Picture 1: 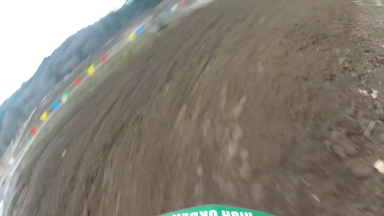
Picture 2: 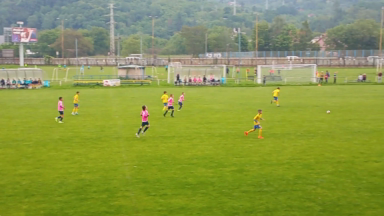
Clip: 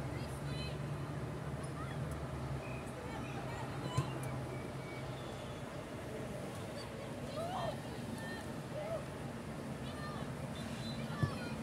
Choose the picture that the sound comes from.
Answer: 2